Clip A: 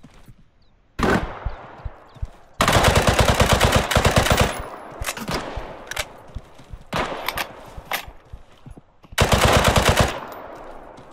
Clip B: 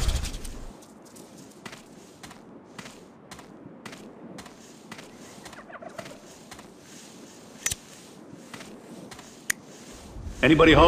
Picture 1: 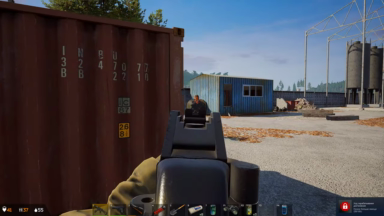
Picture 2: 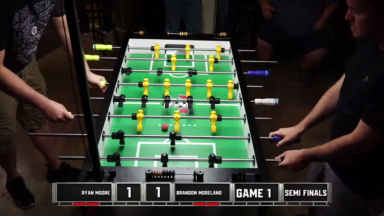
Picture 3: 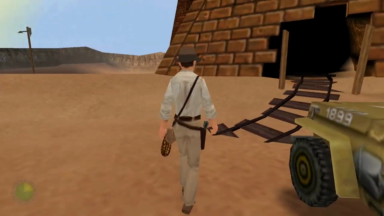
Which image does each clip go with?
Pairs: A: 1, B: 3